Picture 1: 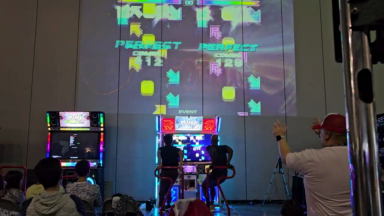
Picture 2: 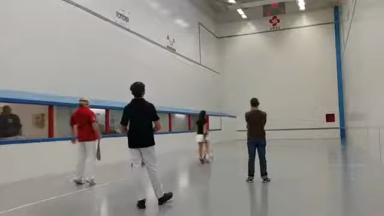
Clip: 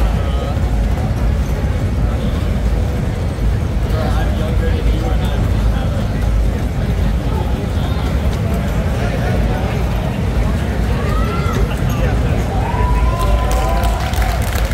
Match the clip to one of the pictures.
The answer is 1